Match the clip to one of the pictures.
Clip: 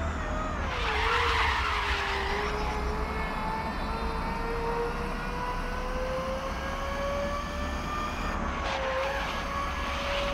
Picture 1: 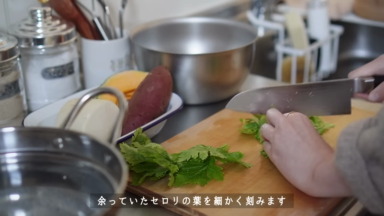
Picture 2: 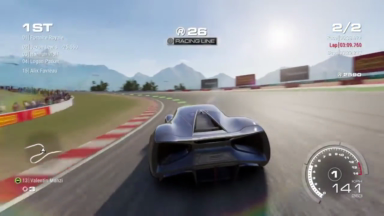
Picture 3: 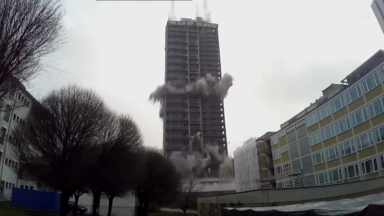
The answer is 2